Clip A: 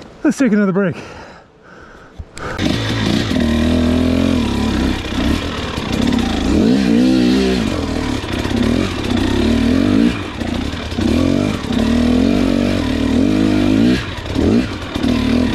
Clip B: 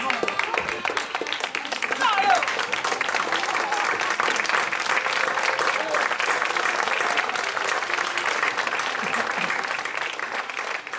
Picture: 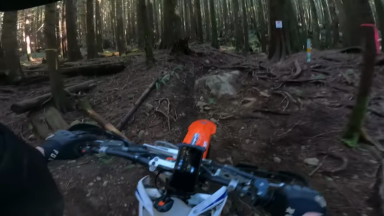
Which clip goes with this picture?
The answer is A